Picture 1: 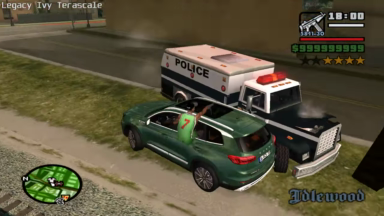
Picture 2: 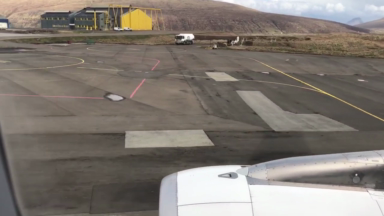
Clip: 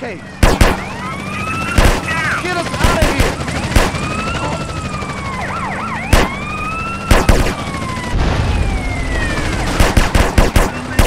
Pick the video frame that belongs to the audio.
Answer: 1